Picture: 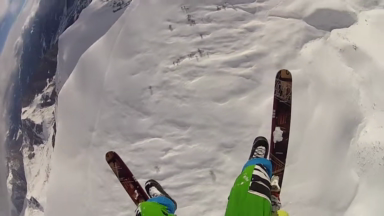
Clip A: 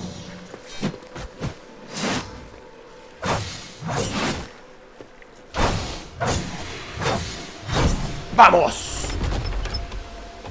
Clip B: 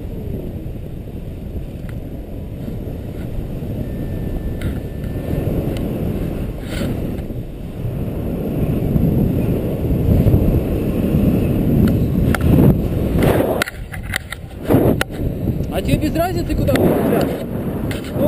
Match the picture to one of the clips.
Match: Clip B